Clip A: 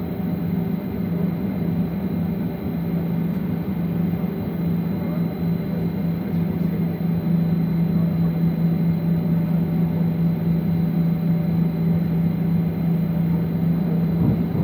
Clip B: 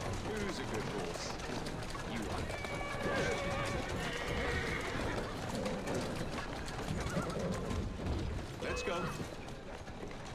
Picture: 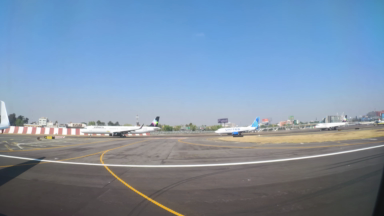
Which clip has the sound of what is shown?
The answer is A